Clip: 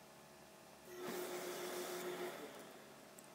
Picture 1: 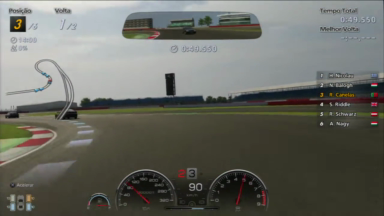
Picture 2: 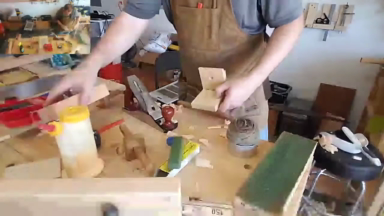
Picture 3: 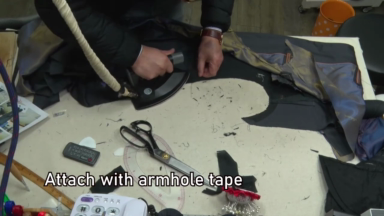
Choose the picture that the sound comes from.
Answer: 3